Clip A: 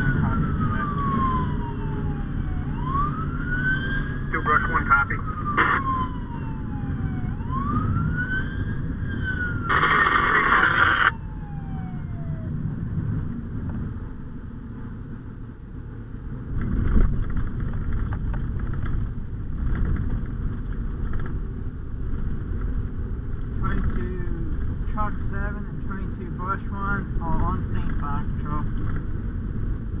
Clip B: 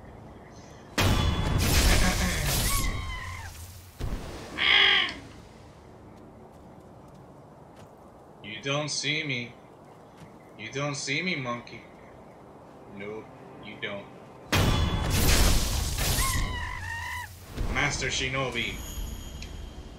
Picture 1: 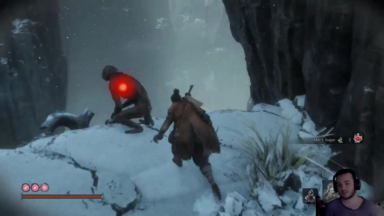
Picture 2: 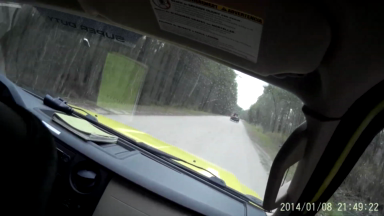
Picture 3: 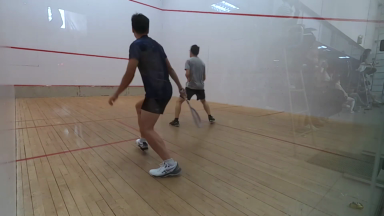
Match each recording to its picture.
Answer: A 2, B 1